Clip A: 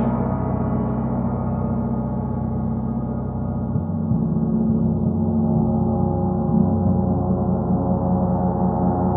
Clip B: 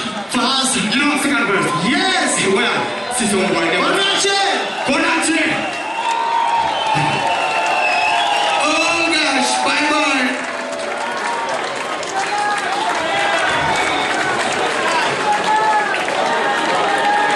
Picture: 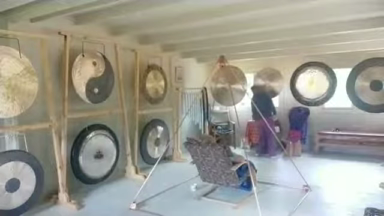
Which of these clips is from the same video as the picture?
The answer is A